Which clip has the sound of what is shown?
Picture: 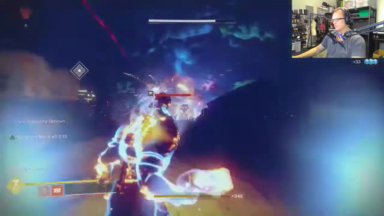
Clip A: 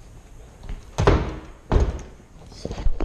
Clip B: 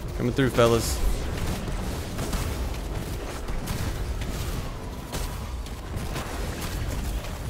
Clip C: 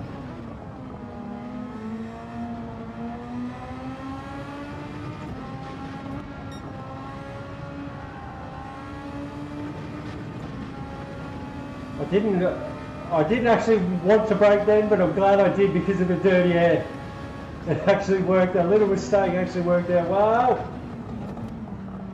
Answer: B